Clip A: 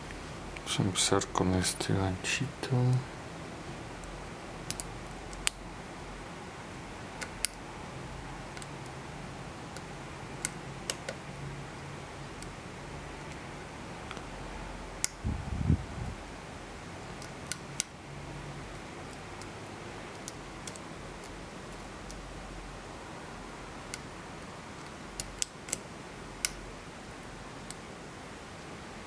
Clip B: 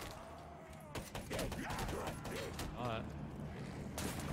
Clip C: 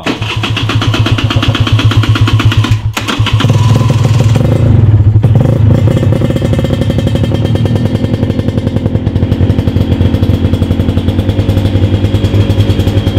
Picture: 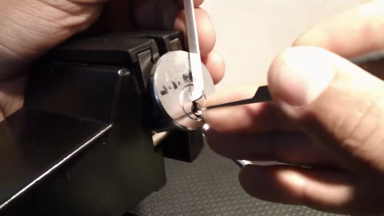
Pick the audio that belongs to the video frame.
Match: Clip A